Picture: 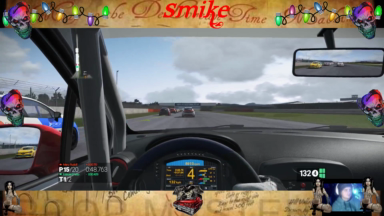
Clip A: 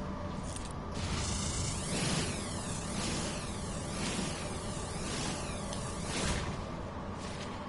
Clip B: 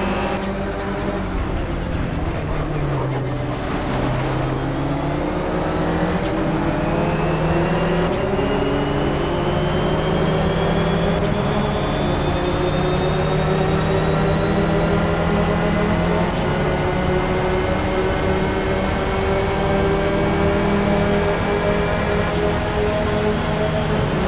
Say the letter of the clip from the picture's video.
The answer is B